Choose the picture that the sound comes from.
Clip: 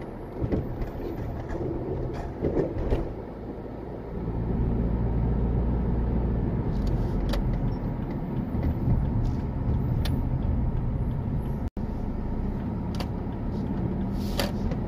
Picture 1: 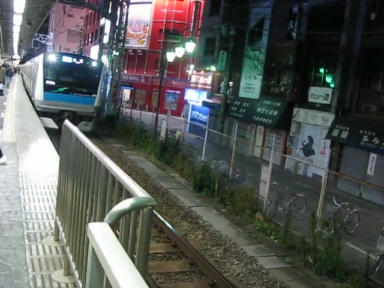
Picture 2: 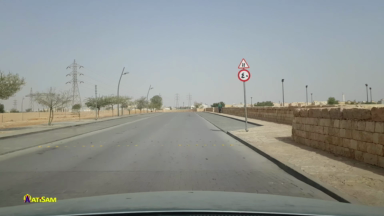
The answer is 2